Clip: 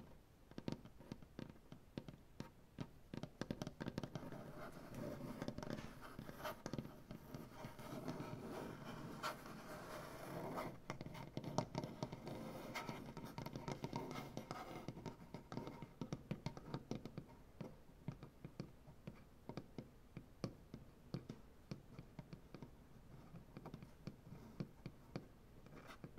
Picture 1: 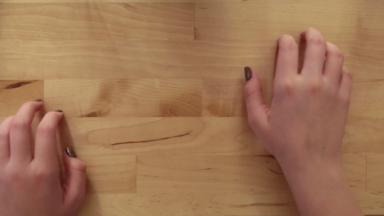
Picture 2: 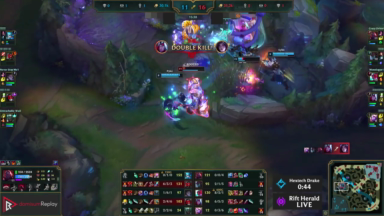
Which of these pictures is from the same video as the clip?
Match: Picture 1